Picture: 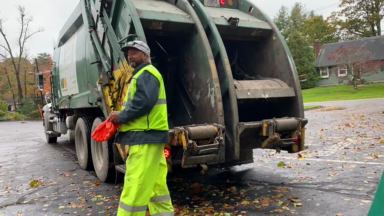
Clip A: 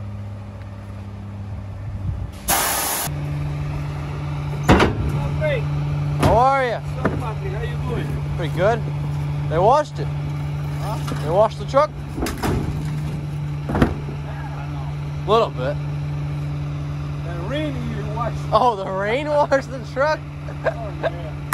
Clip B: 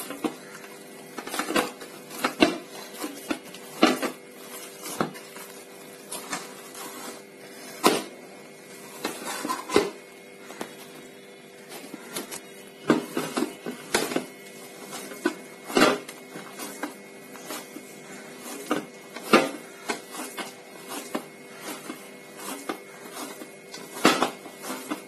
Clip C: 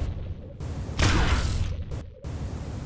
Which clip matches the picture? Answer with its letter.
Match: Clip A